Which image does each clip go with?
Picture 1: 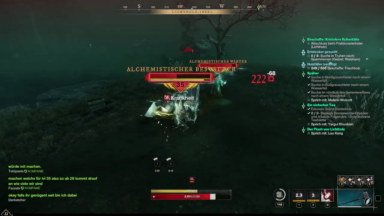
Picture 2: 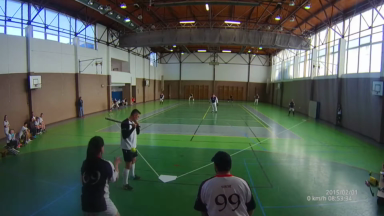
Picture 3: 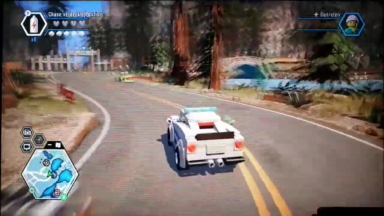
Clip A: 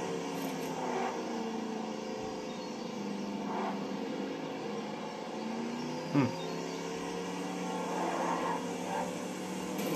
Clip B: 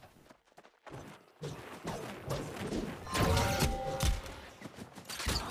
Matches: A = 3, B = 1